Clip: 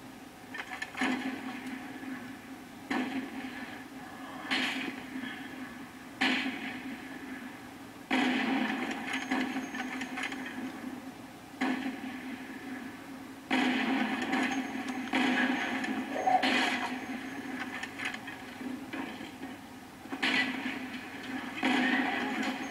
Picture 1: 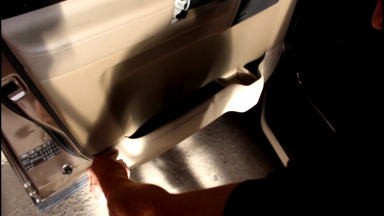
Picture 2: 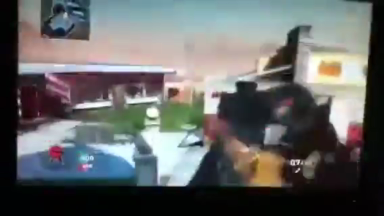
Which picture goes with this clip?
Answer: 2